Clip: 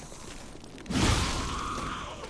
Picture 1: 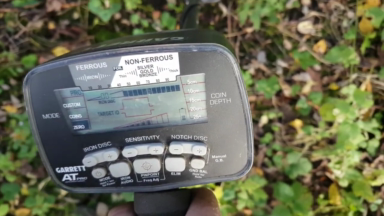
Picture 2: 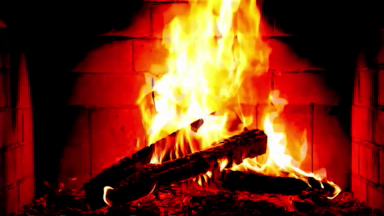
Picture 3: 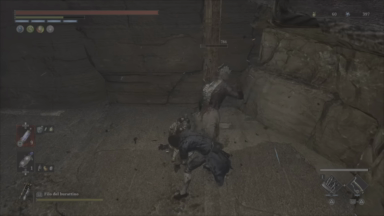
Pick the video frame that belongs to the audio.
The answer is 3